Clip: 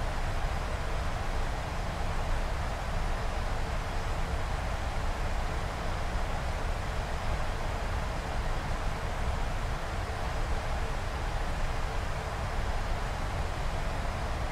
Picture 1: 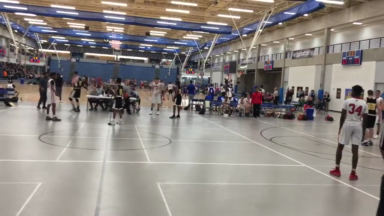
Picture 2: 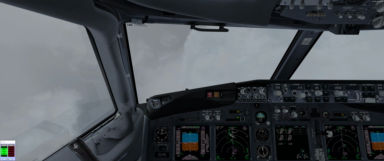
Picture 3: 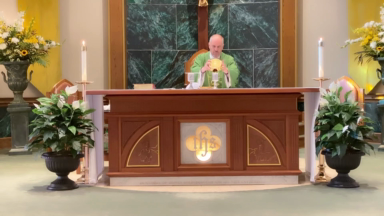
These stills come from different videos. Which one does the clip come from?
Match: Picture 2